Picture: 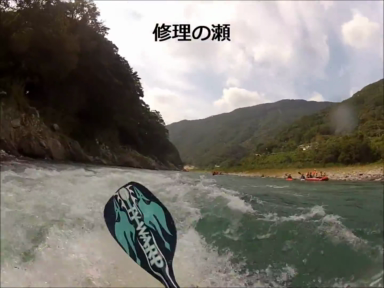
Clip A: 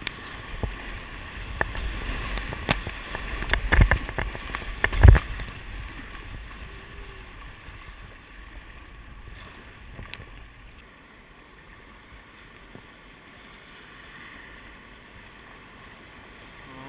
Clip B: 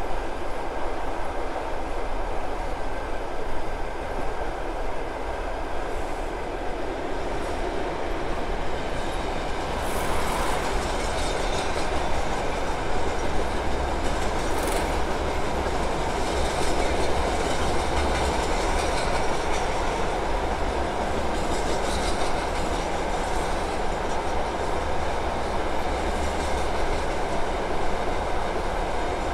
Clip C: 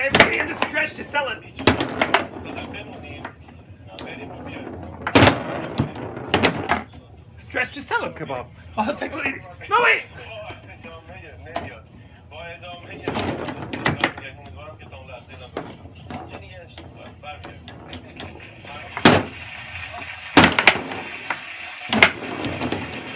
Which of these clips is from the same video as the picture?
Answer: A